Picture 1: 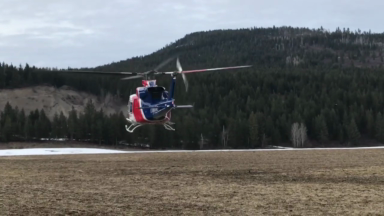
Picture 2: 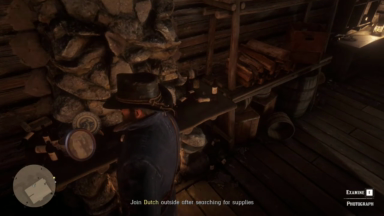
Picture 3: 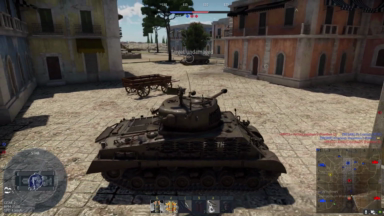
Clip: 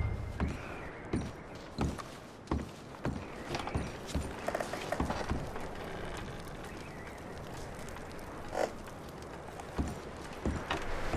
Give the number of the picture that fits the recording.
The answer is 2